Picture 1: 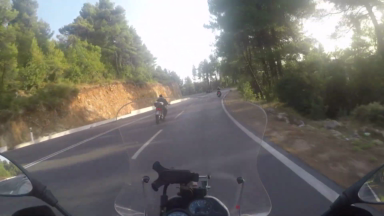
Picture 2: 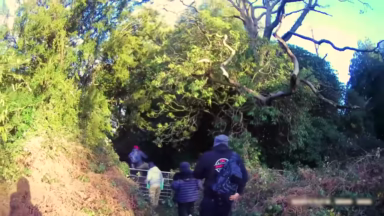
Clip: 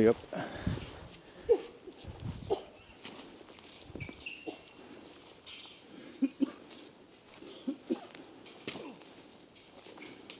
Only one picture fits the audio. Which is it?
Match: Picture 2